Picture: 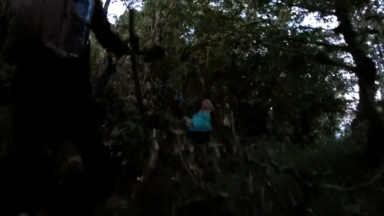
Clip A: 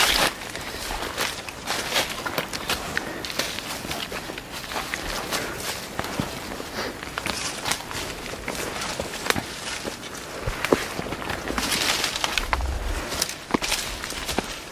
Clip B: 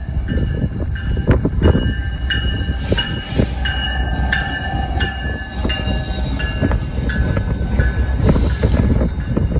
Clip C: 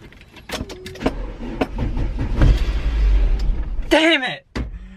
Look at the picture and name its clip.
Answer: A